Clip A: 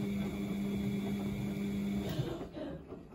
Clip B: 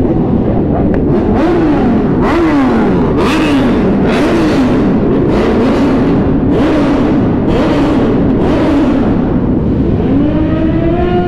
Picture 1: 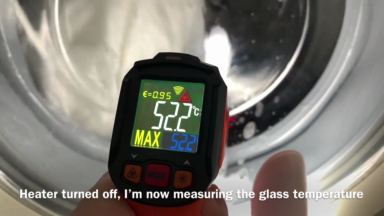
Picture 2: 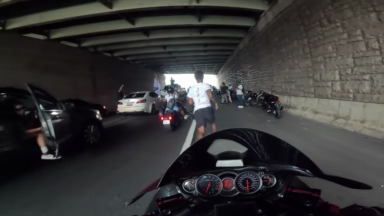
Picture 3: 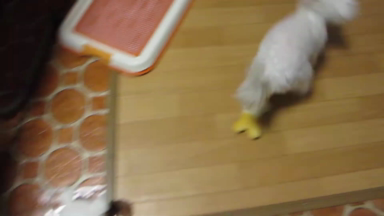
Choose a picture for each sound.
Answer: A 1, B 2